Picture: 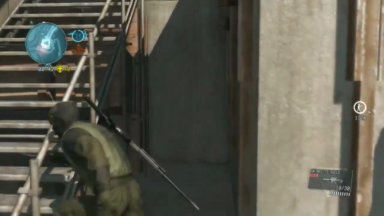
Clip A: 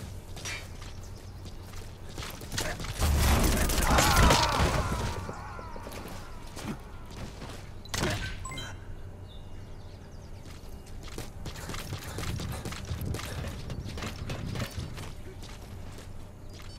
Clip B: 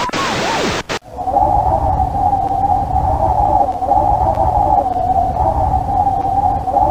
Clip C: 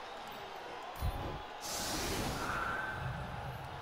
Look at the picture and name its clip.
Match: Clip A